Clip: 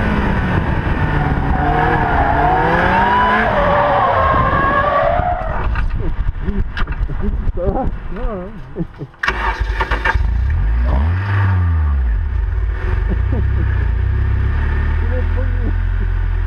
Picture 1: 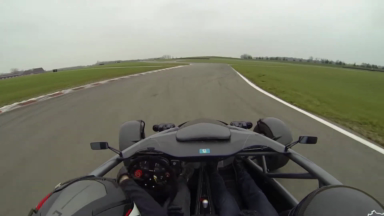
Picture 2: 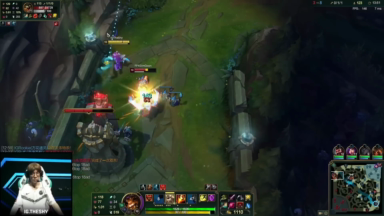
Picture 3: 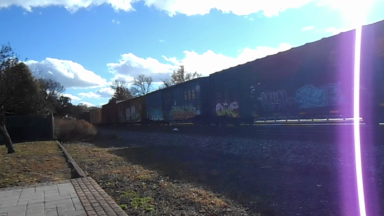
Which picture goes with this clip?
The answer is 1